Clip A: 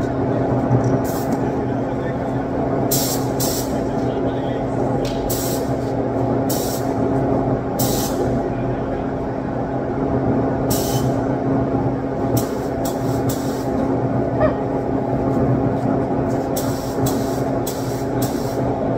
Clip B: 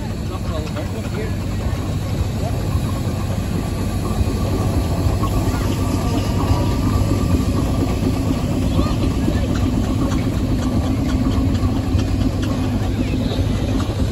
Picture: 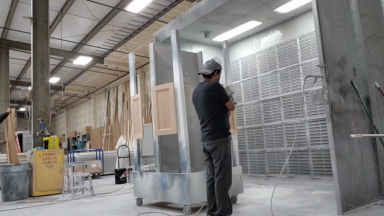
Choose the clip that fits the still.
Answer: A